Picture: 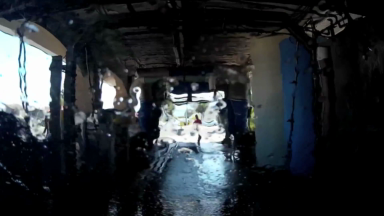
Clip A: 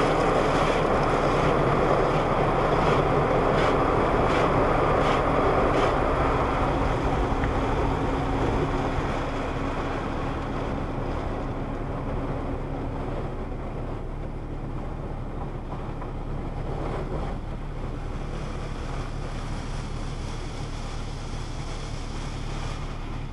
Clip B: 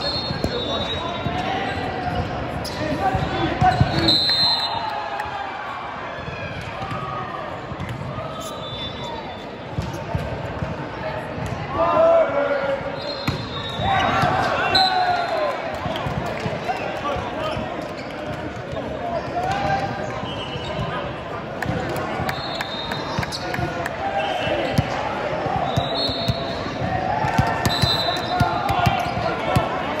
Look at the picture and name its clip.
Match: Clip A